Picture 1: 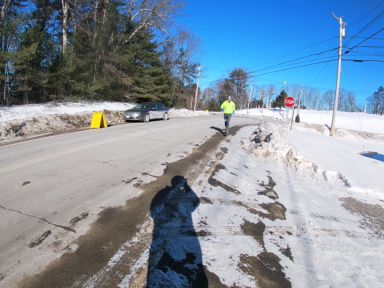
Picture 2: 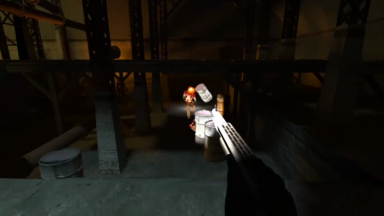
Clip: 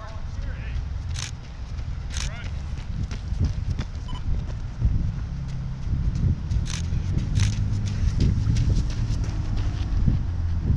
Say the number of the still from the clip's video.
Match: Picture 1